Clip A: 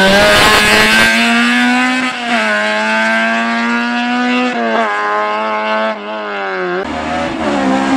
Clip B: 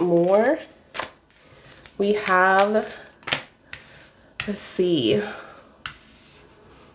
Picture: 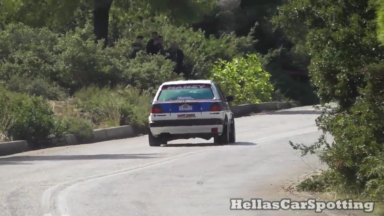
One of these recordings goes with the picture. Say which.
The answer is A